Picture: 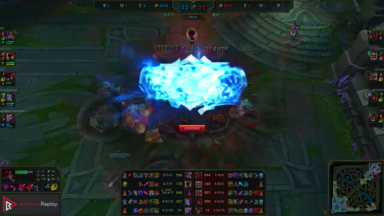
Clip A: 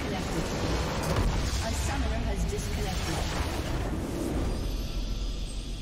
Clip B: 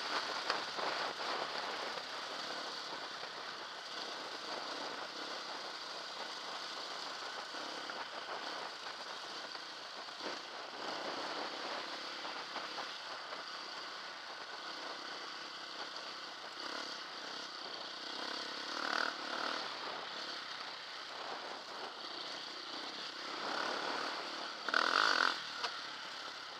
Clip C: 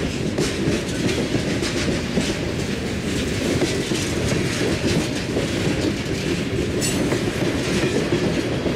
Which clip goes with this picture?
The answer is A